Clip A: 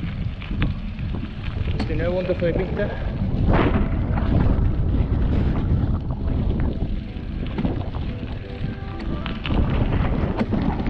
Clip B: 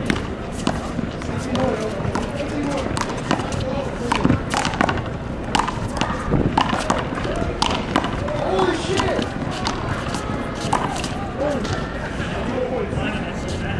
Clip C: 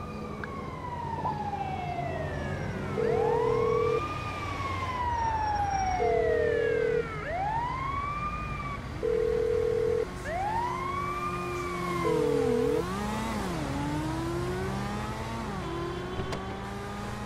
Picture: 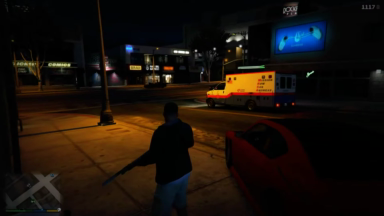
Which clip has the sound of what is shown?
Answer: C